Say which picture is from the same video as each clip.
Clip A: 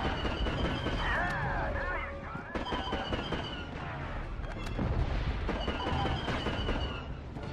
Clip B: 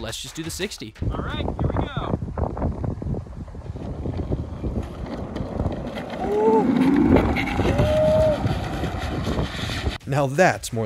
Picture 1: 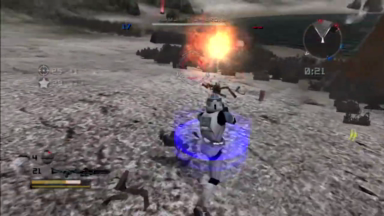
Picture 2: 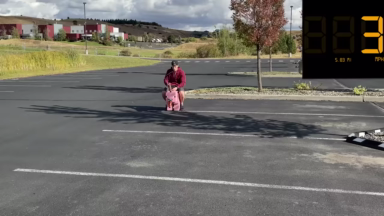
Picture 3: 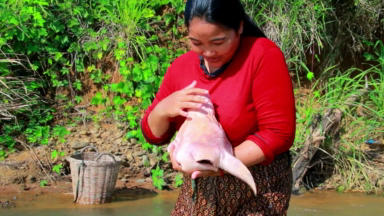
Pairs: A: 1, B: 2